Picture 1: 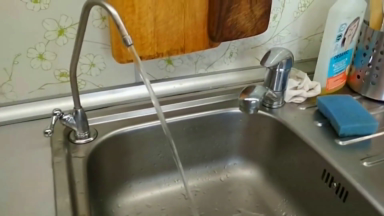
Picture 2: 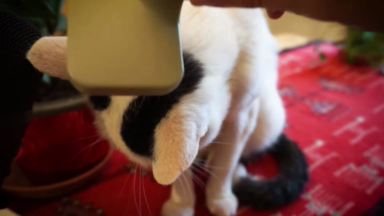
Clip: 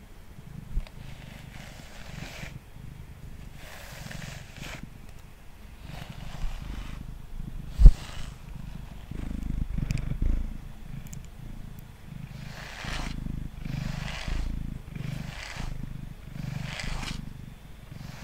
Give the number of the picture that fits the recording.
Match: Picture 2